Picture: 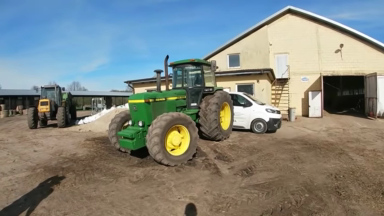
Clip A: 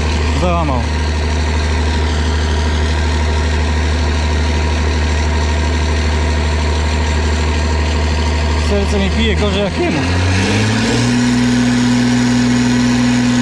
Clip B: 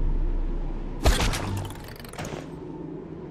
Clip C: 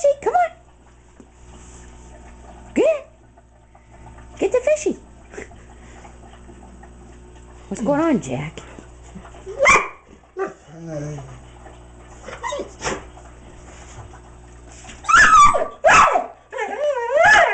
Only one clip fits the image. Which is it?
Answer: A